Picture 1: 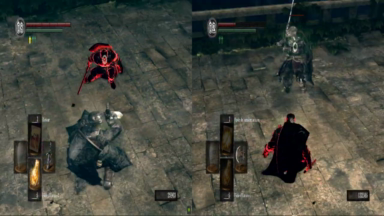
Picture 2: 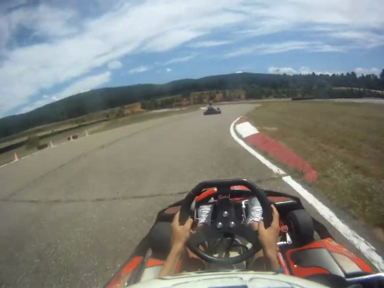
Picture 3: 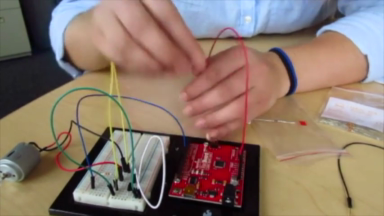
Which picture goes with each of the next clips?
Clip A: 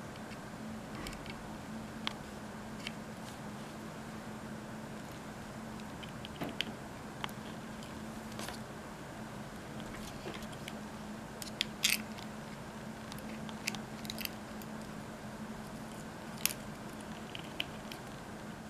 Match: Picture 3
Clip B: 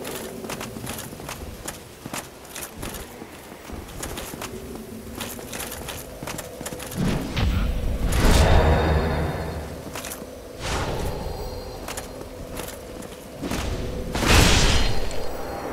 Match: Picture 1